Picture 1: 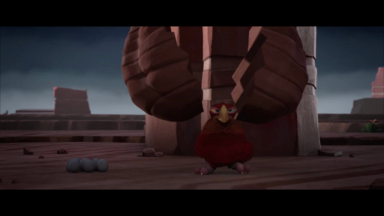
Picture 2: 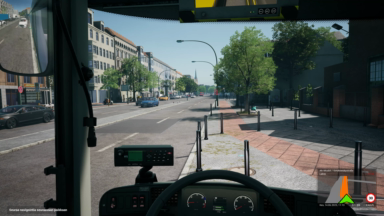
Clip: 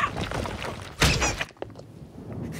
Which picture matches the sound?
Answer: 1